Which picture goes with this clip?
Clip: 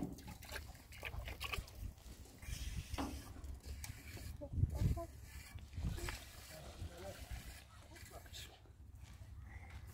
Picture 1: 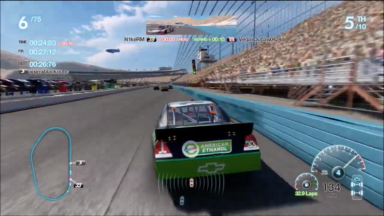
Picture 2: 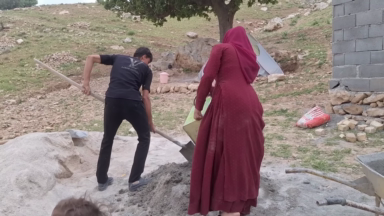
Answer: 2